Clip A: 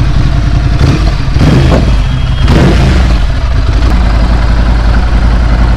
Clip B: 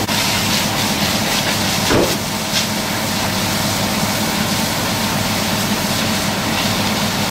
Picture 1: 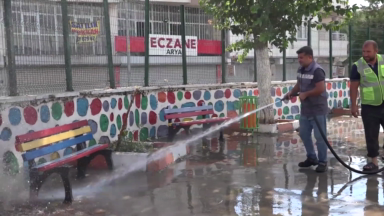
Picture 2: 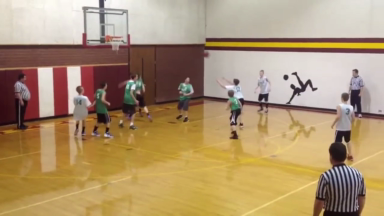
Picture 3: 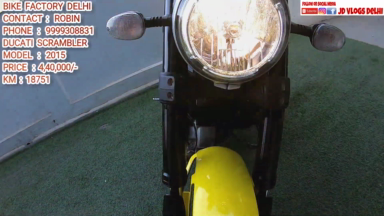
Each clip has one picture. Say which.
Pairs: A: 3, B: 1